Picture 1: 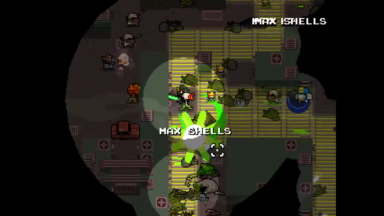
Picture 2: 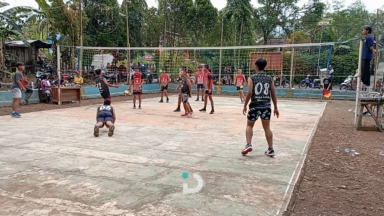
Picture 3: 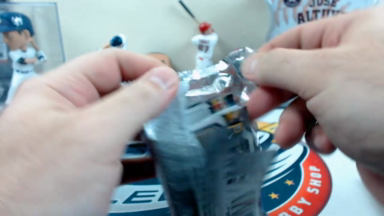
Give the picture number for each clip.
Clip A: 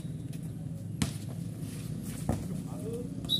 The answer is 2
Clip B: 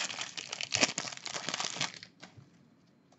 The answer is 3